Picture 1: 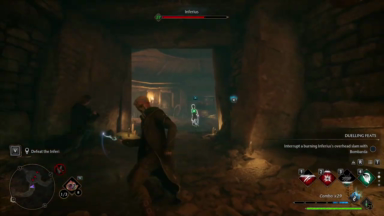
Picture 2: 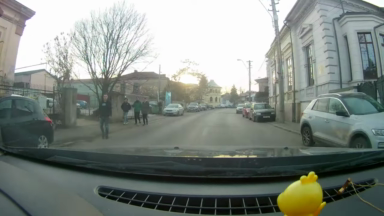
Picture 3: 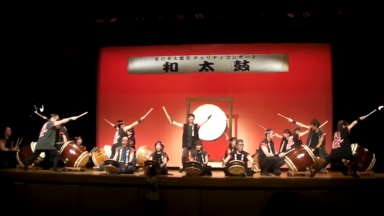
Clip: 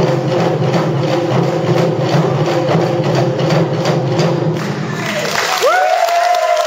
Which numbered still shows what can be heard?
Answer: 3